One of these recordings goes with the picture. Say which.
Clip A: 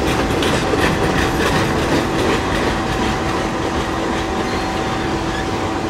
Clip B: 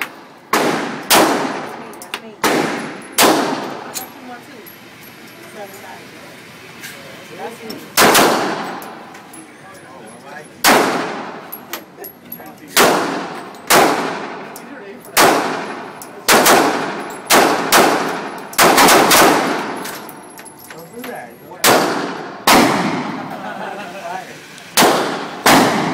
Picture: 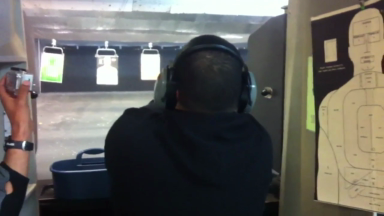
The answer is B